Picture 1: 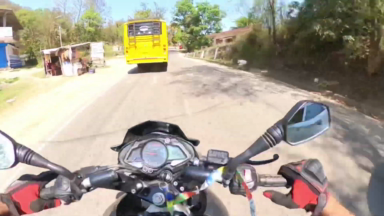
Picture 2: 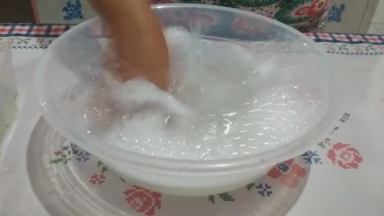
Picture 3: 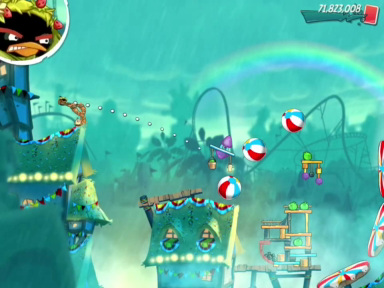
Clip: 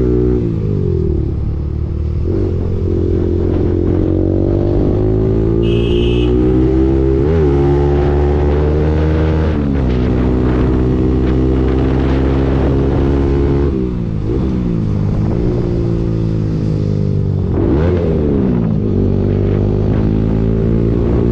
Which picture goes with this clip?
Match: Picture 1